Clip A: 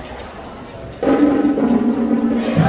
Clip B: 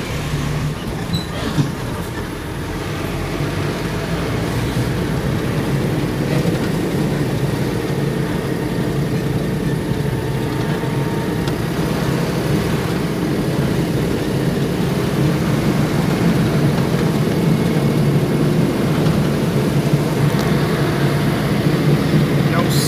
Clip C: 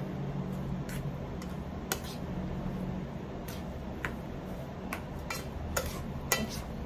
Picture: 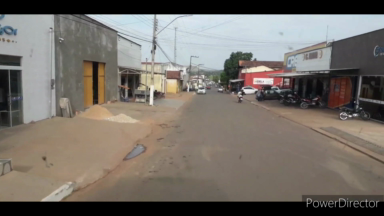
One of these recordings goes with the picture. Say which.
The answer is B